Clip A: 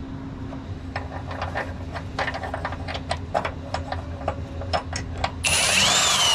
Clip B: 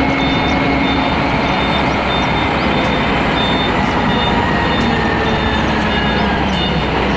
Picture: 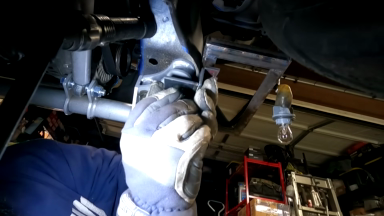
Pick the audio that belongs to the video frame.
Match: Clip A